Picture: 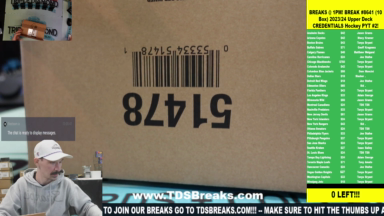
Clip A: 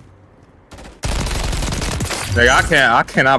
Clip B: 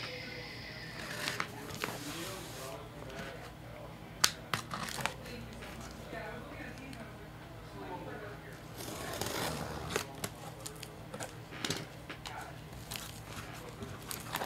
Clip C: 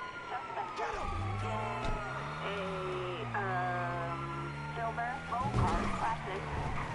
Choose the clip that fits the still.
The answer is B